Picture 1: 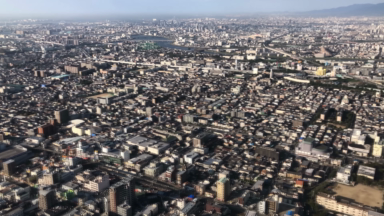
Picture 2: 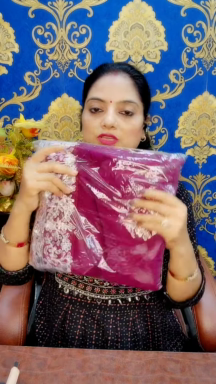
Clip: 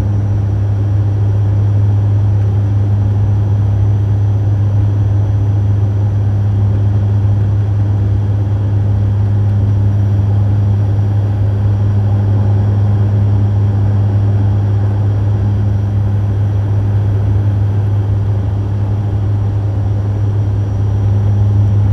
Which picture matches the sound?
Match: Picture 1